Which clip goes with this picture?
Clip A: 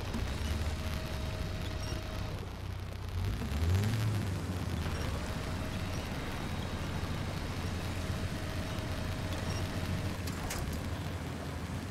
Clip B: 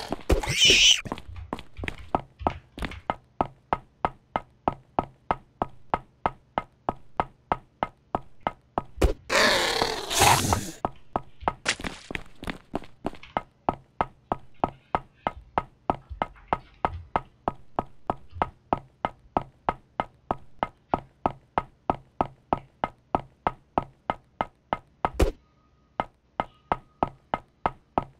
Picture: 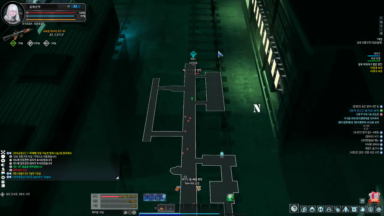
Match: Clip B